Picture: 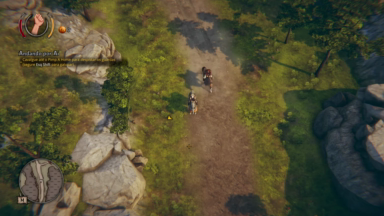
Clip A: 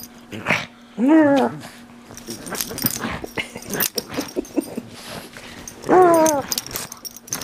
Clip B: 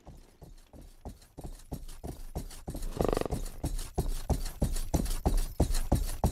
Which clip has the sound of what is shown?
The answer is B